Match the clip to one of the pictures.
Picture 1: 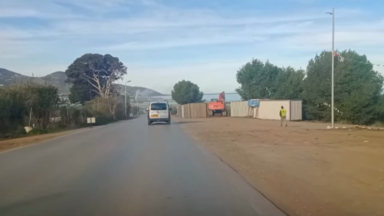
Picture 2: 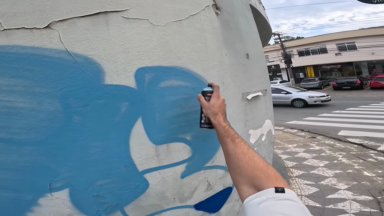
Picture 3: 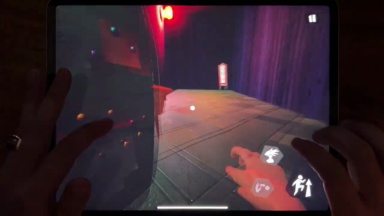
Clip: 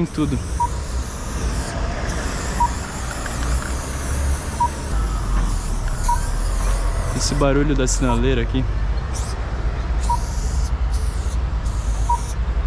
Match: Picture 2